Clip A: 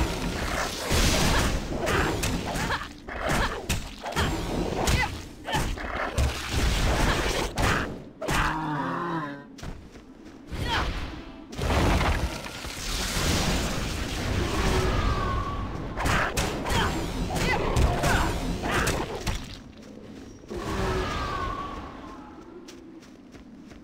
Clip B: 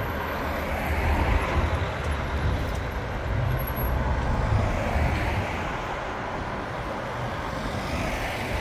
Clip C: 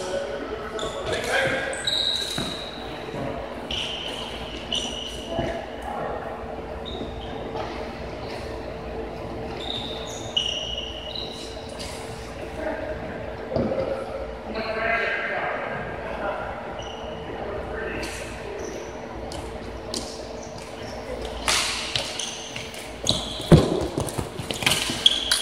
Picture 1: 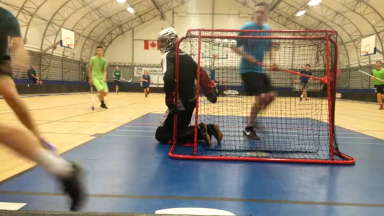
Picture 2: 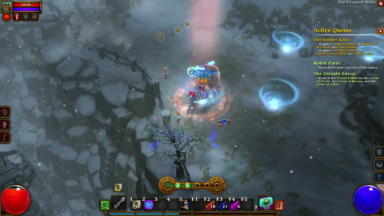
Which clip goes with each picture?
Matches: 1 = C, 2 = A